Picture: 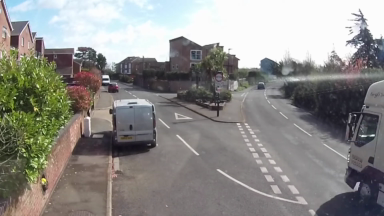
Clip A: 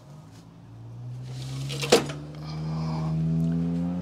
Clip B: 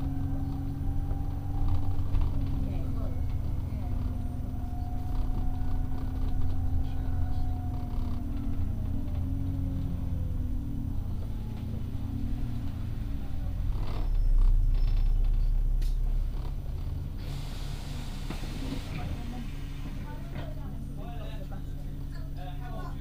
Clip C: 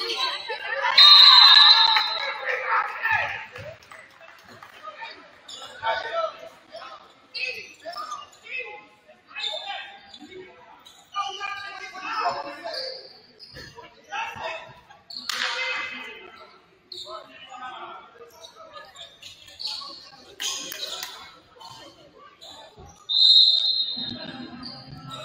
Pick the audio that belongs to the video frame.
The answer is B